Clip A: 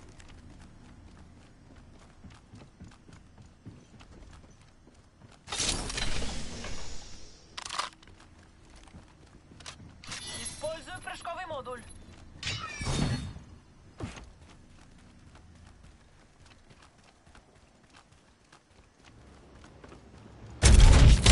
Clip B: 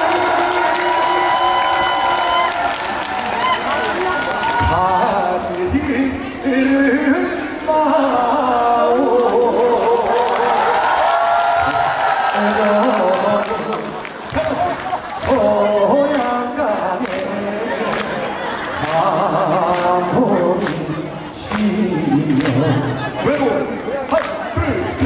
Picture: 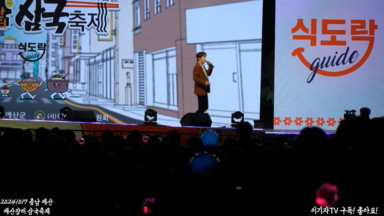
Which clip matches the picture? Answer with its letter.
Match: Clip B